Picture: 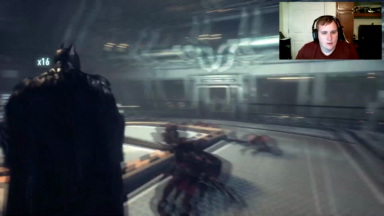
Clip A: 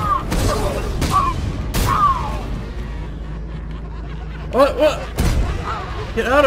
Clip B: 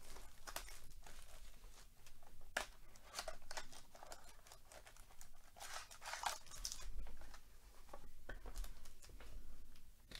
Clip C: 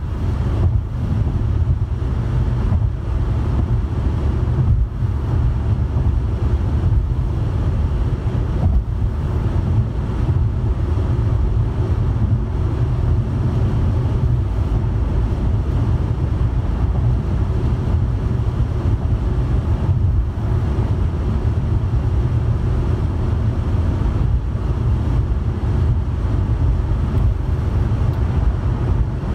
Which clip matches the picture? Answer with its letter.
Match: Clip A